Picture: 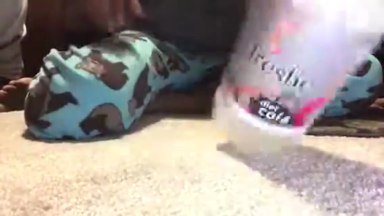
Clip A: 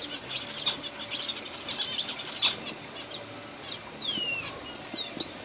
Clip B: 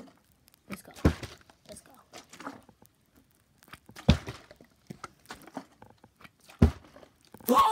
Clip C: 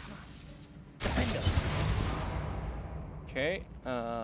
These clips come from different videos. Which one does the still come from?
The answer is B